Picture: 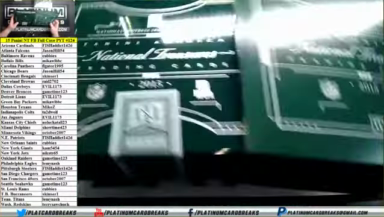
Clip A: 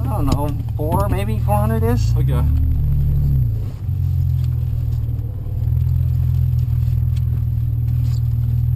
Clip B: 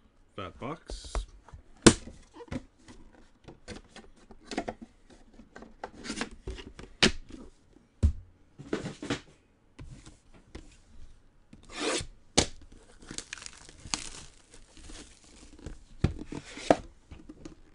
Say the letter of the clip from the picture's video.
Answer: B